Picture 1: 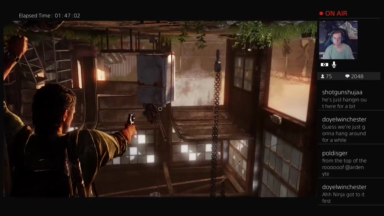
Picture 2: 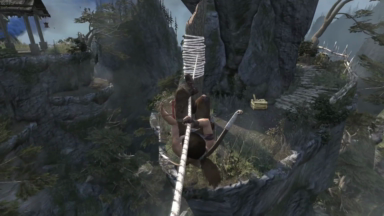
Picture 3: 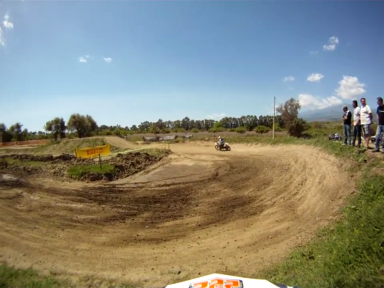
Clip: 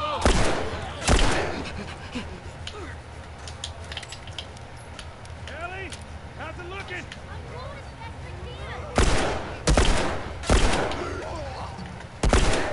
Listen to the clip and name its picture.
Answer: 1